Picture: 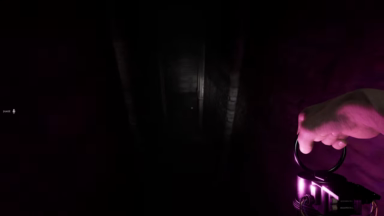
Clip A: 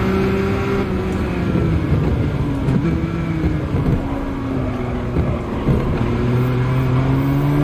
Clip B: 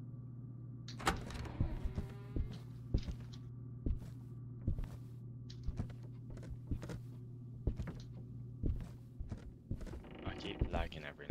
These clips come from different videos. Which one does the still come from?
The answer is B